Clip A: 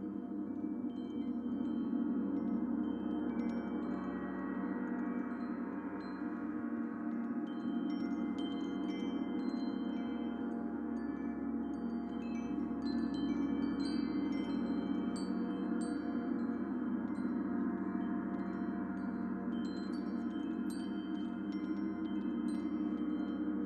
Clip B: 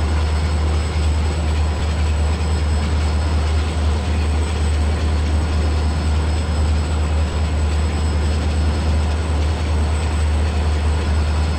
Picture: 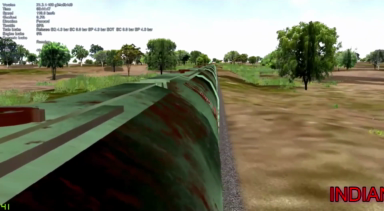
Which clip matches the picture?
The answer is B